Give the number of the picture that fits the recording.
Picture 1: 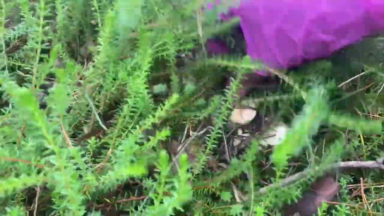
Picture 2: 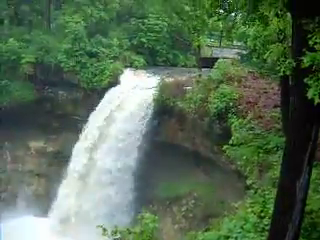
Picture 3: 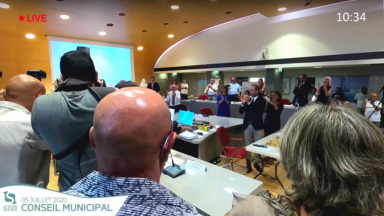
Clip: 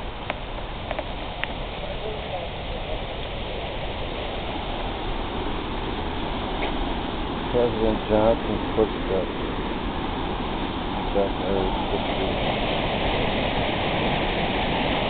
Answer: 2